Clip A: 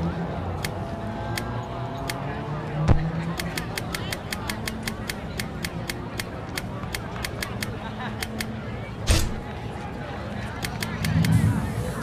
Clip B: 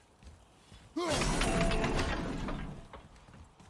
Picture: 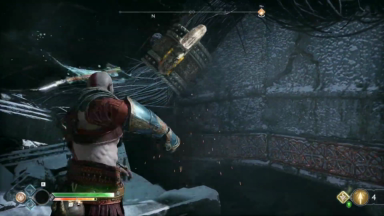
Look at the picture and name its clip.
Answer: B